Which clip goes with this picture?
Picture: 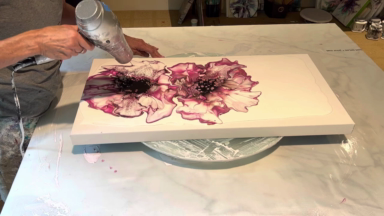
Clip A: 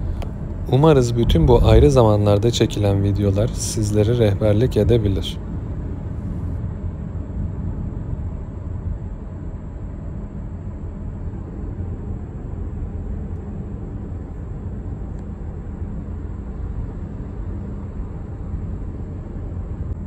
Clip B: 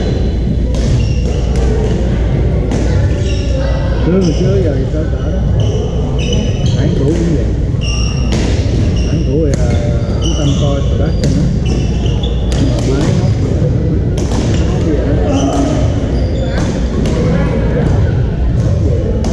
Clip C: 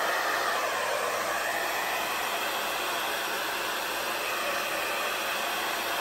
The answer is C